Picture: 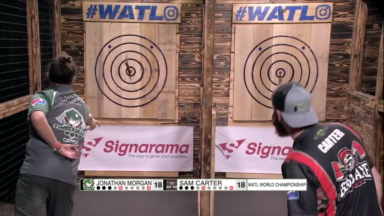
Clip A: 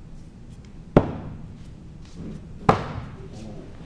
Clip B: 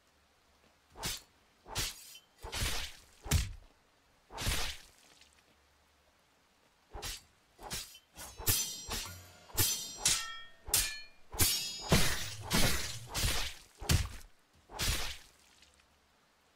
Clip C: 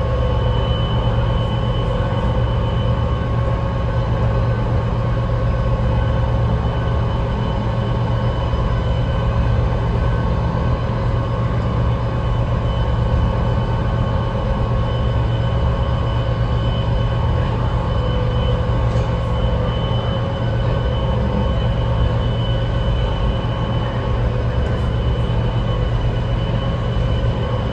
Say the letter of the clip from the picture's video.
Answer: A